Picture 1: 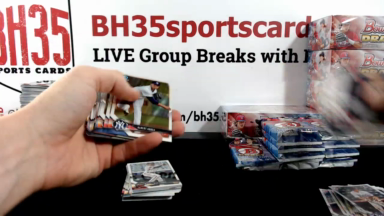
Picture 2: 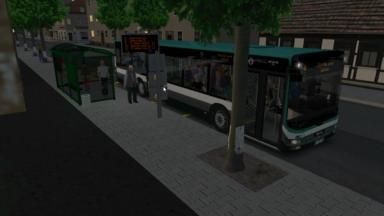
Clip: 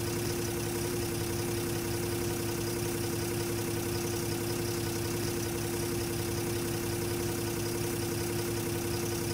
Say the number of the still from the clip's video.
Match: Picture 2